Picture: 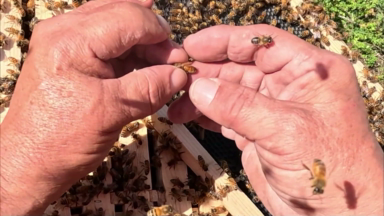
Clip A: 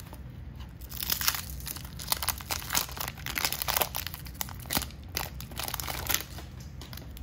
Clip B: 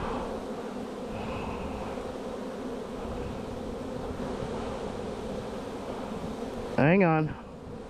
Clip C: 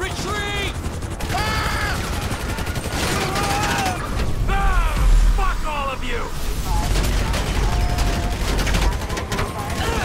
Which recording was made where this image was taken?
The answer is B